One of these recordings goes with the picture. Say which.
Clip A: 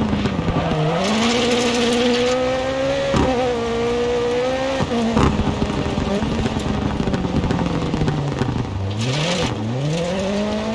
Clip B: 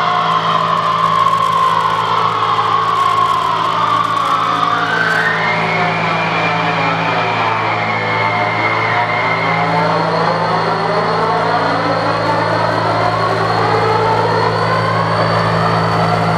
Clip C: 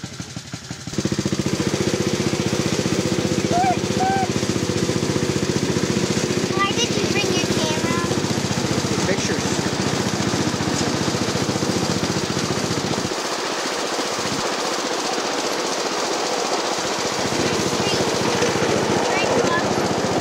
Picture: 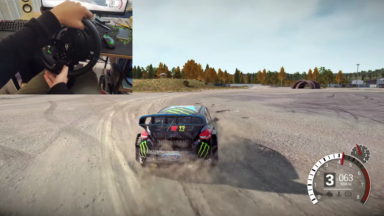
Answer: A